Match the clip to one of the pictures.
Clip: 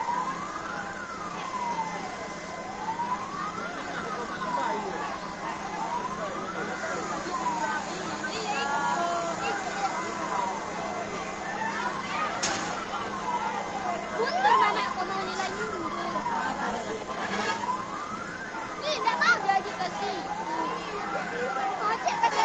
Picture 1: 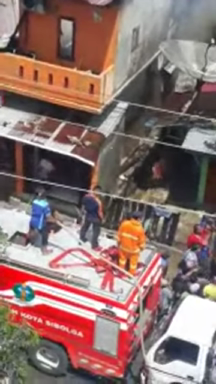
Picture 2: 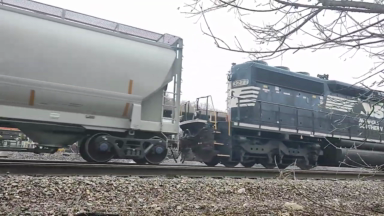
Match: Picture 1